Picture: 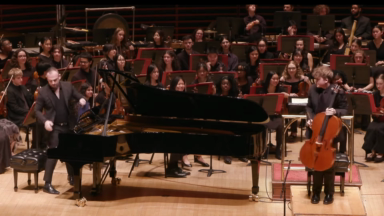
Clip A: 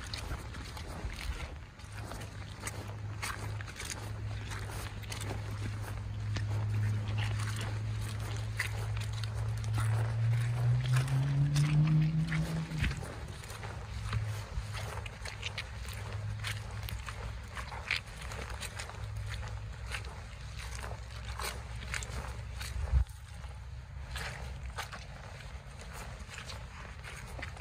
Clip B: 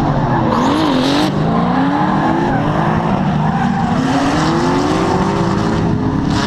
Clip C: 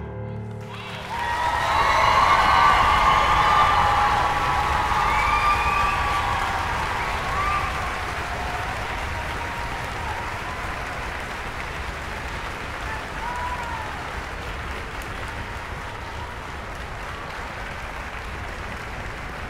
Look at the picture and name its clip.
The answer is C